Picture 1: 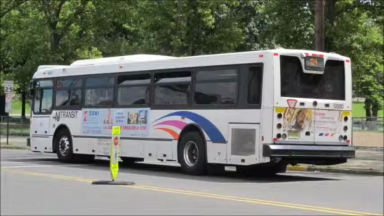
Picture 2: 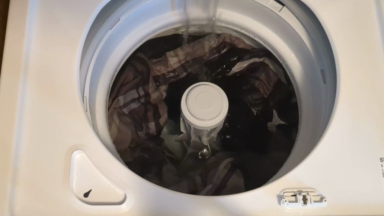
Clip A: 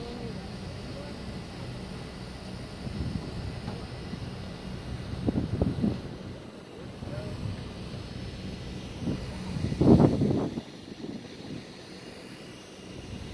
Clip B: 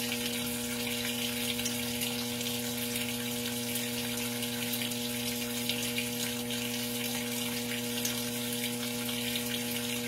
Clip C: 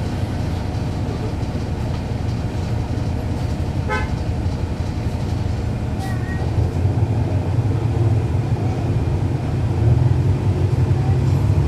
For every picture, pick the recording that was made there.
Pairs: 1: C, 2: B